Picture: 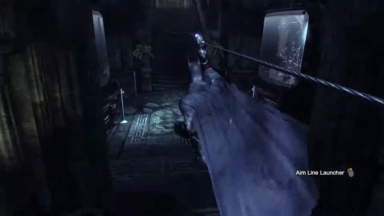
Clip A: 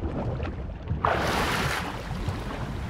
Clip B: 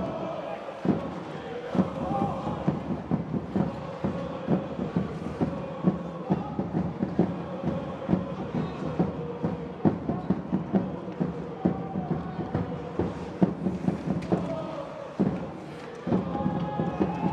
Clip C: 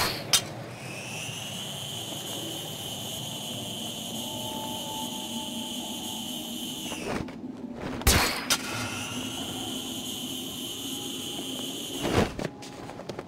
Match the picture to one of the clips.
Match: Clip C